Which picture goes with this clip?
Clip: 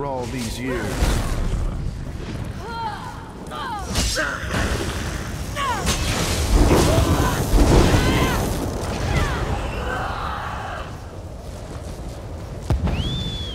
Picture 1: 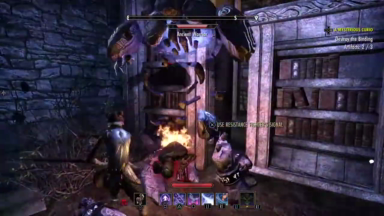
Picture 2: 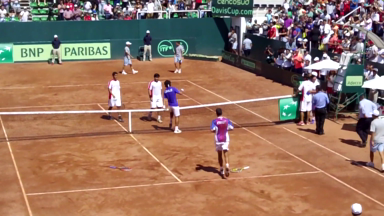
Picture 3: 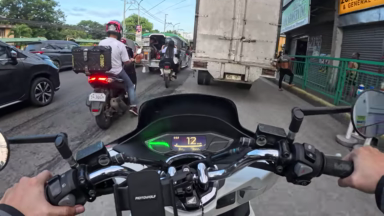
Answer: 1